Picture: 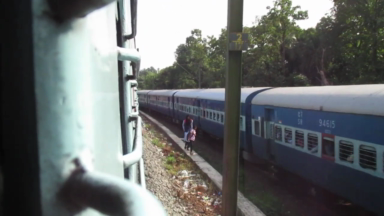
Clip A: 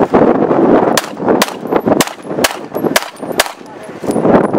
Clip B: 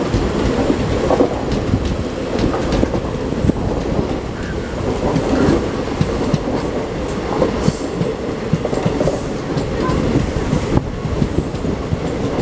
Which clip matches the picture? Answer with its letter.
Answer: B